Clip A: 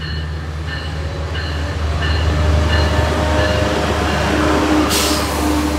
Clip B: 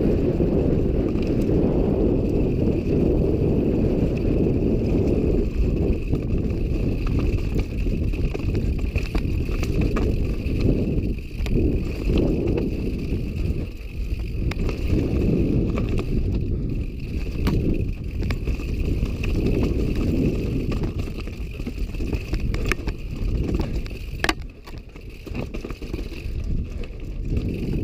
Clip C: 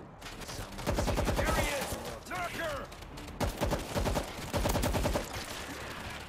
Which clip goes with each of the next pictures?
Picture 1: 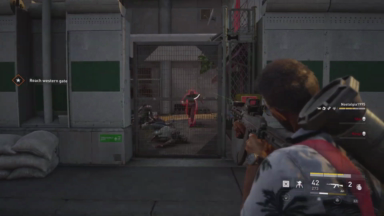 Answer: C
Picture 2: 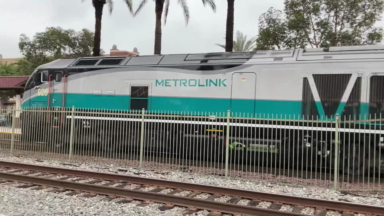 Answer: A